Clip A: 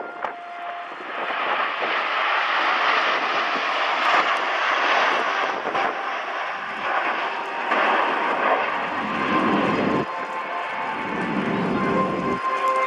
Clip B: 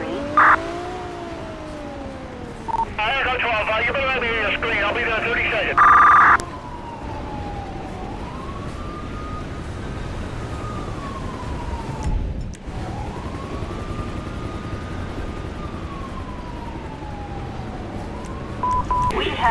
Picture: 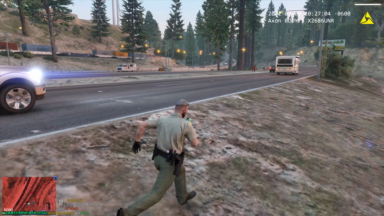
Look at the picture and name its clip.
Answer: B